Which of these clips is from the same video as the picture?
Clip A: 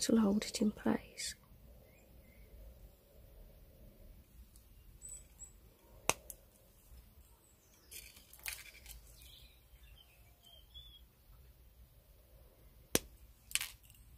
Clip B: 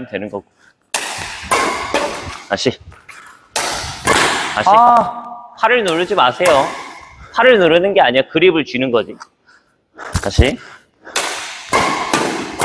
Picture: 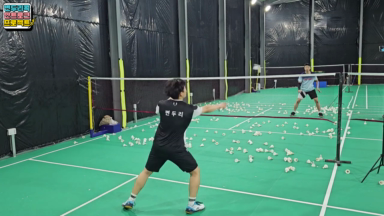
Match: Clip B